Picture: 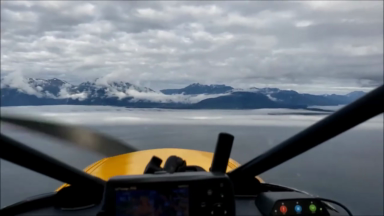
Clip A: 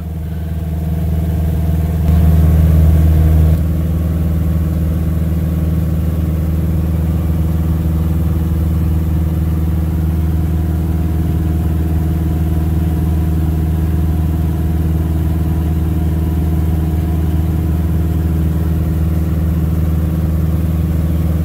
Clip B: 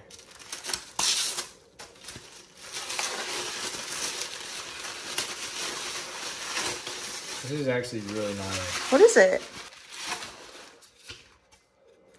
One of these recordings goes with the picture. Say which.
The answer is A